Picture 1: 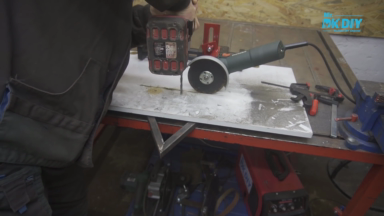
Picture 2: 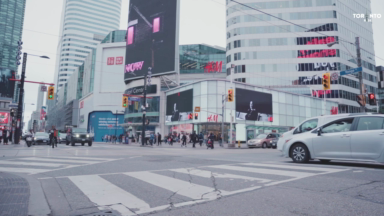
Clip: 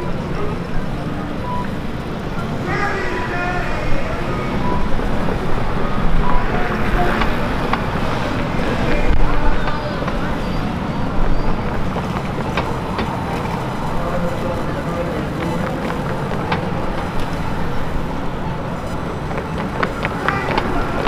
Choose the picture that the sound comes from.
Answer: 2